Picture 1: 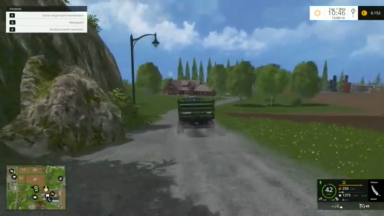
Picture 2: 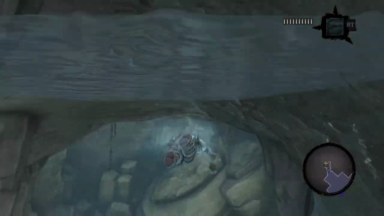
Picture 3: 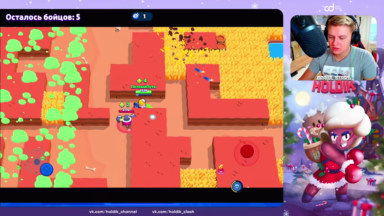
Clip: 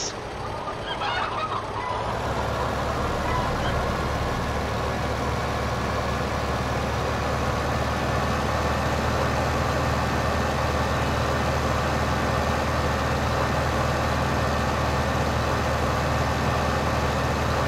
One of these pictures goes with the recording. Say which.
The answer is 1